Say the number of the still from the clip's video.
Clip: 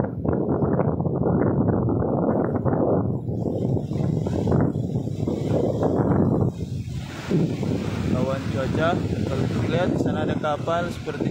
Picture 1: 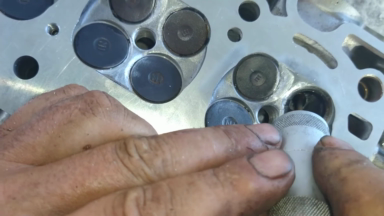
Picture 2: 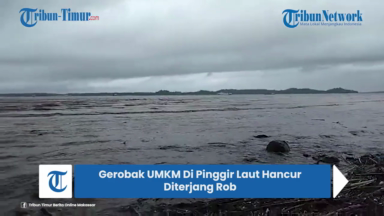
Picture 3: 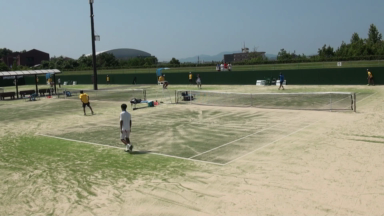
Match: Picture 2